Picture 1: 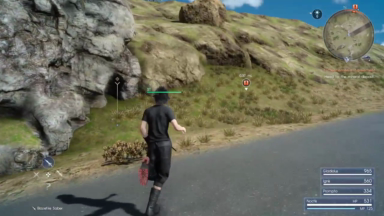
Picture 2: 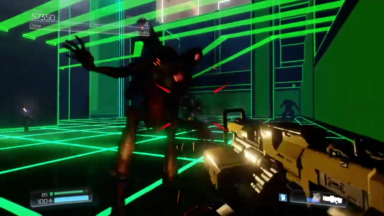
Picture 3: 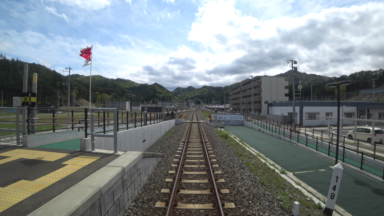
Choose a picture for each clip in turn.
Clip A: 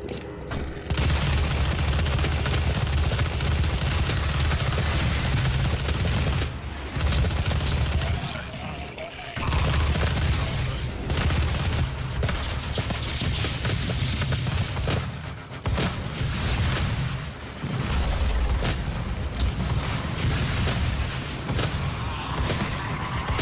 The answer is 2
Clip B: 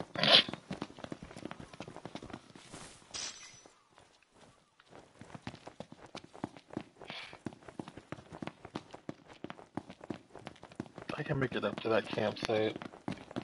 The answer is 1